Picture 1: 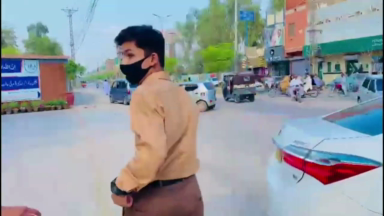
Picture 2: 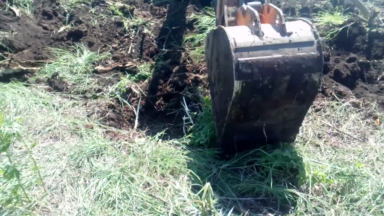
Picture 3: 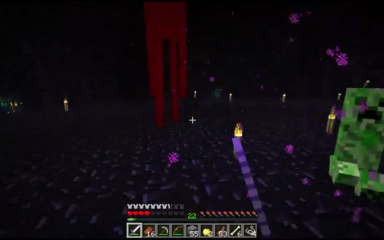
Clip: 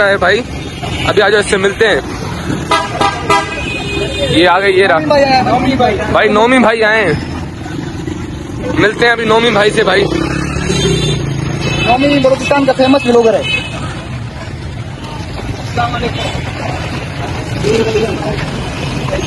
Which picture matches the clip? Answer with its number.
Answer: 1